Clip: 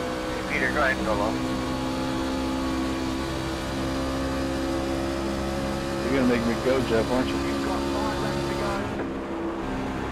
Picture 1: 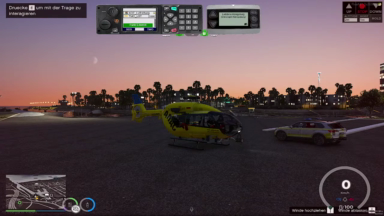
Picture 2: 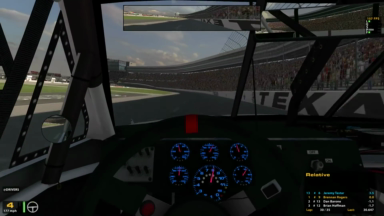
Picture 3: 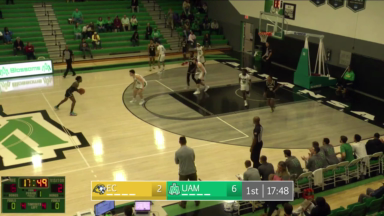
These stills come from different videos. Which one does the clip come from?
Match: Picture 2